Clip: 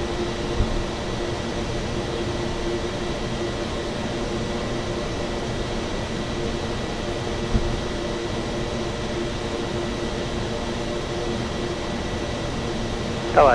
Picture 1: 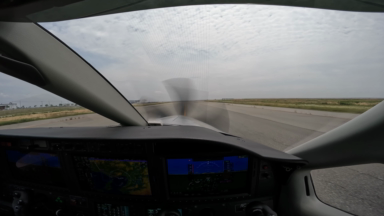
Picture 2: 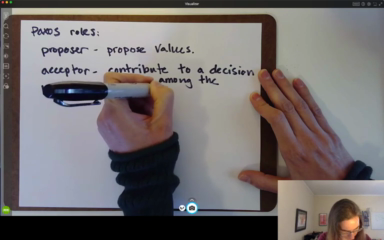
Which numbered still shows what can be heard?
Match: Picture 1